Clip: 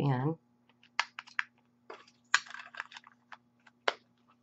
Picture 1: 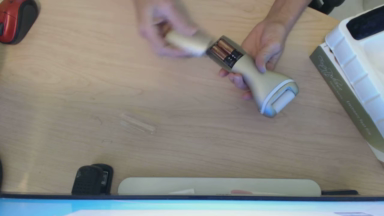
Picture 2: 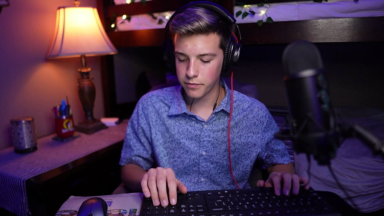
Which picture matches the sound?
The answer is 1